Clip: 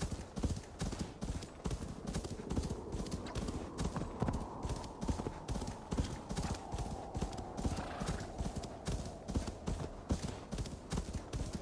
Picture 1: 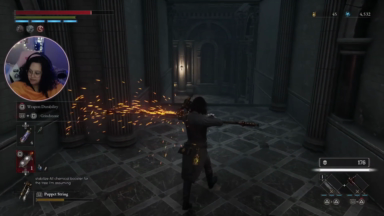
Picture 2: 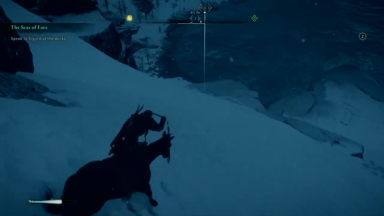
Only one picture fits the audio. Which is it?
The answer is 2